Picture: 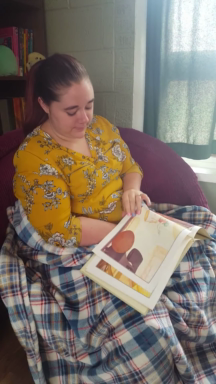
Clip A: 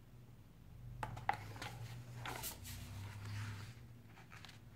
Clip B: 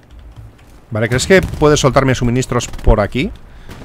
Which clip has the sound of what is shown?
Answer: A